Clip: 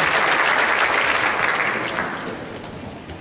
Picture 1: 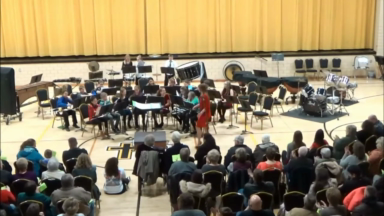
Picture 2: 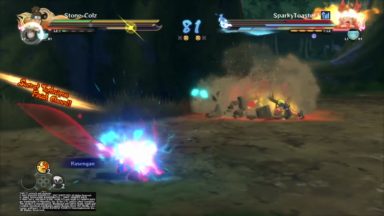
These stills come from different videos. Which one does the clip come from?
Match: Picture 1